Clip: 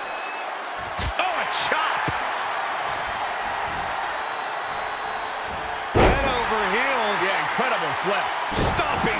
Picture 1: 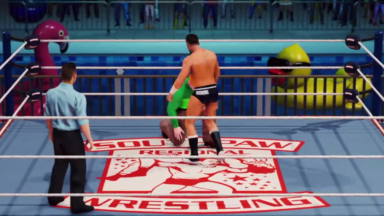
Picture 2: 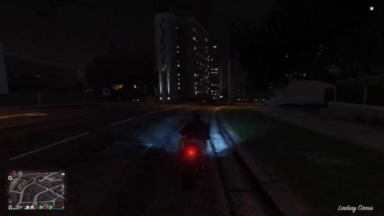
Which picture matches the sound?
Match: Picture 1